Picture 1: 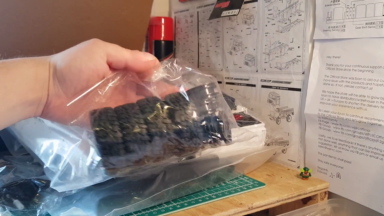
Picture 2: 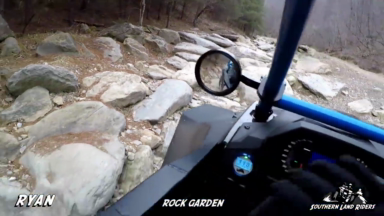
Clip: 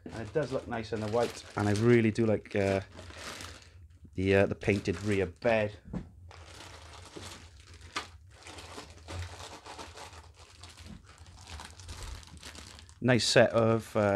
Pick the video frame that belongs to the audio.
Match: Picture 1